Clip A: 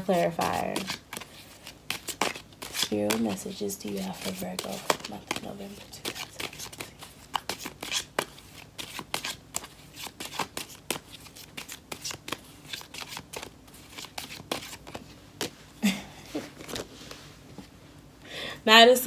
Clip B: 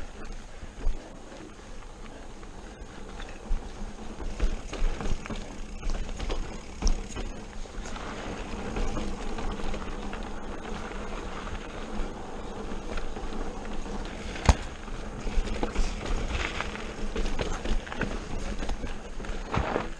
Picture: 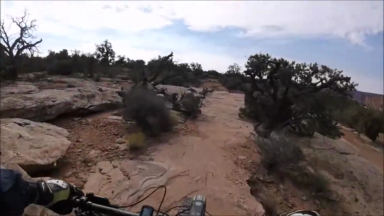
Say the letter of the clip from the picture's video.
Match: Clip B